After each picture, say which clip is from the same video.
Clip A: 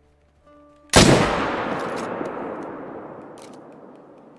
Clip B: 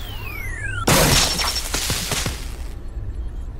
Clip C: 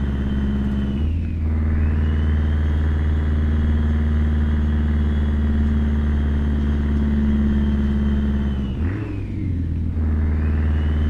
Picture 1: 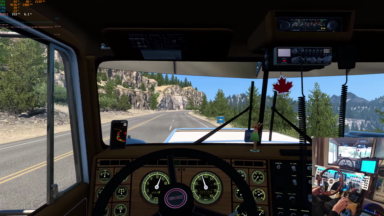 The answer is C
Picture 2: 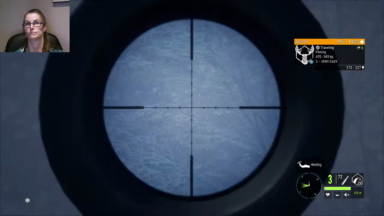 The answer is A